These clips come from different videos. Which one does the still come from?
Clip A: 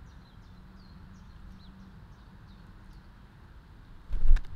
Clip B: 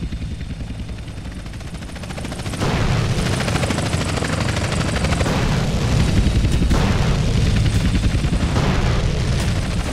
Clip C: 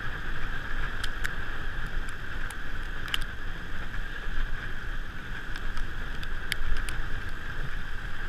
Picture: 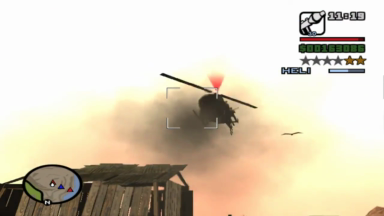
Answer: B